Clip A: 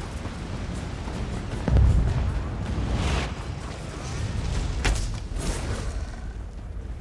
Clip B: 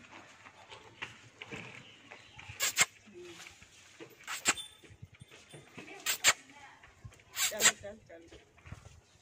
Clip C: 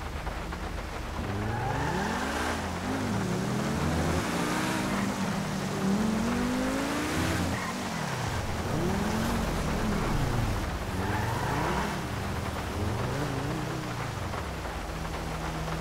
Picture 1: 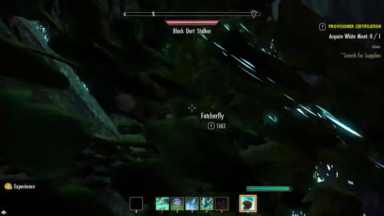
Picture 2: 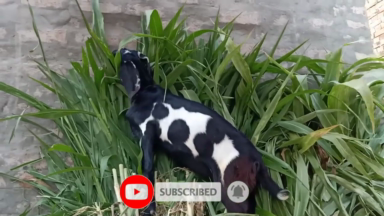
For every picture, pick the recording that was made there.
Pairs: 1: A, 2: B